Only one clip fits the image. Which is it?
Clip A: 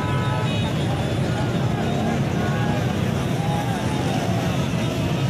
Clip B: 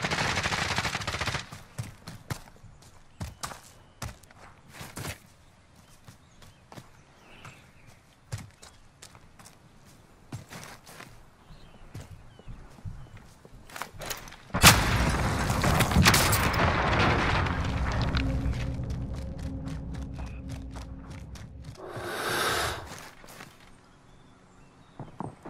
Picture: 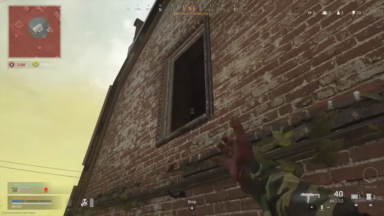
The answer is B